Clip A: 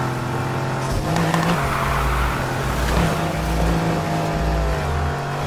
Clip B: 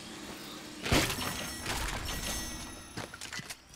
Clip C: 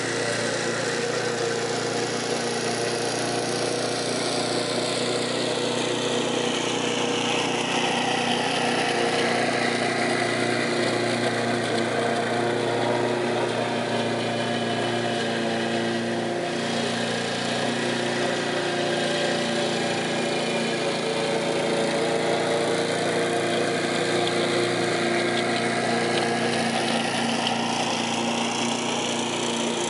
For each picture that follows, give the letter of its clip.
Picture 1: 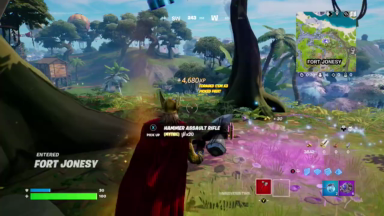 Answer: B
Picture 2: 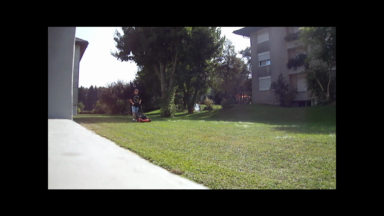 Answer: C